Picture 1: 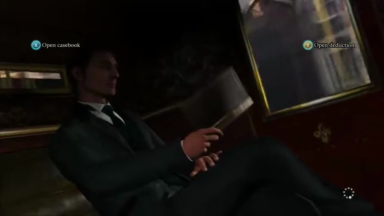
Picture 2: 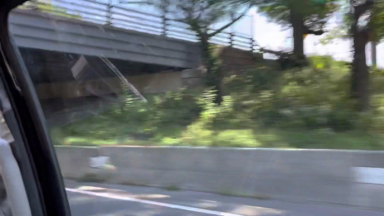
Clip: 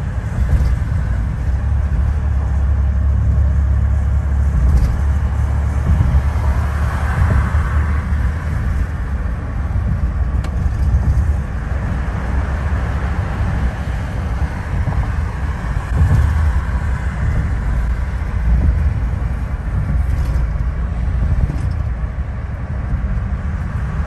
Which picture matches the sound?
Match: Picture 2